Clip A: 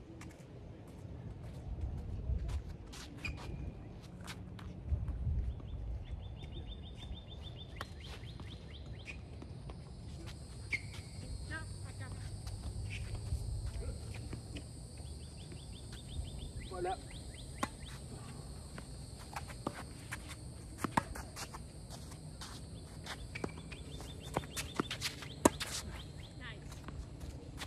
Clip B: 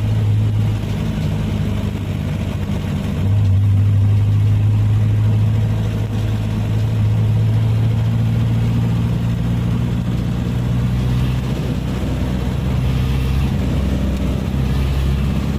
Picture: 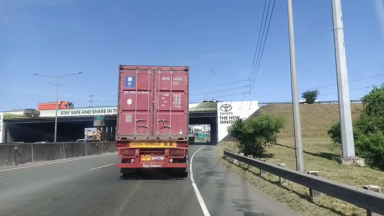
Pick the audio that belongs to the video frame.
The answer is B